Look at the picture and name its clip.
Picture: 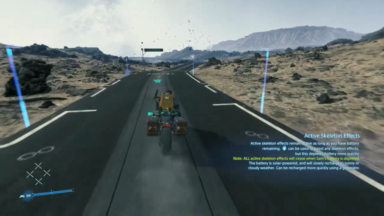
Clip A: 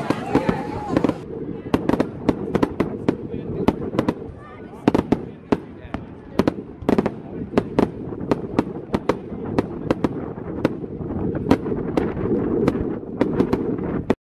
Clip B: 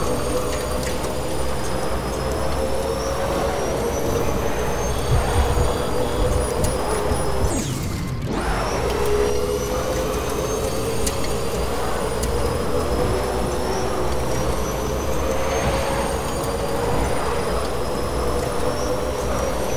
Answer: B